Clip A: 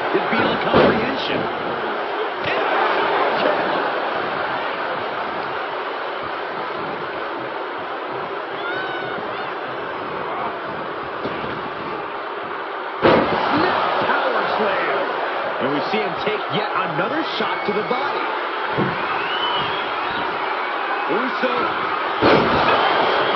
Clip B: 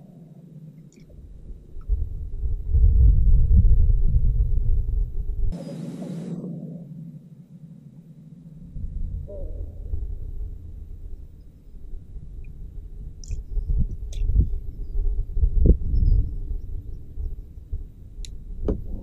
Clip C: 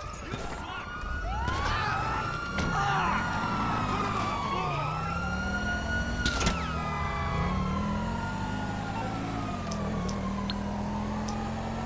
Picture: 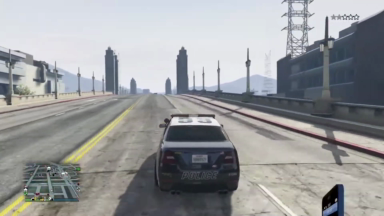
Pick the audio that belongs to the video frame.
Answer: C